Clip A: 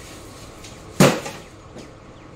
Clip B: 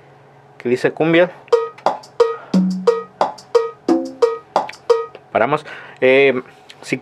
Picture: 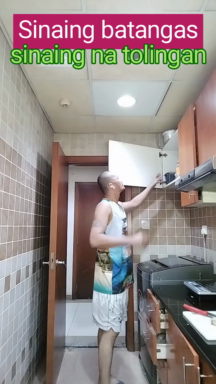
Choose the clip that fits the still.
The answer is A